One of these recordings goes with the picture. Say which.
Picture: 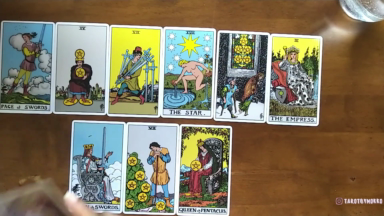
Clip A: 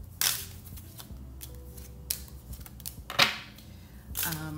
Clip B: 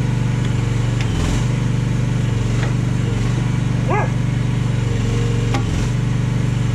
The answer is A